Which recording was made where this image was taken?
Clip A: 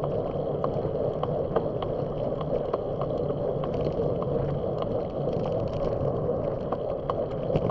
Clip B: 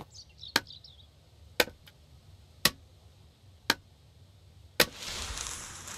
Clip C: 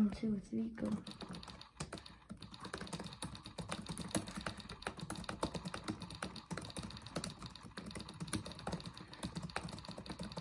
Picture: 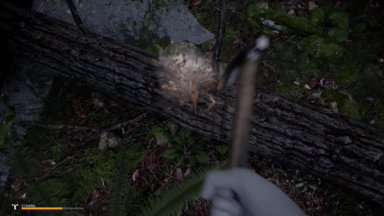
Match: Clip B